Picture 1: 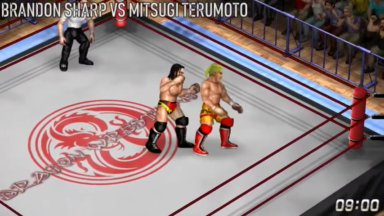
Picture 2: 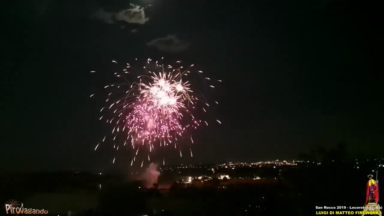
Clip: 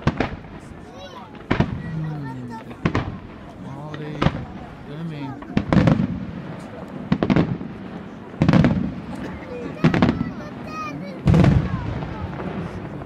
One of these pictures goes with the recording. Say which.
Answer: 2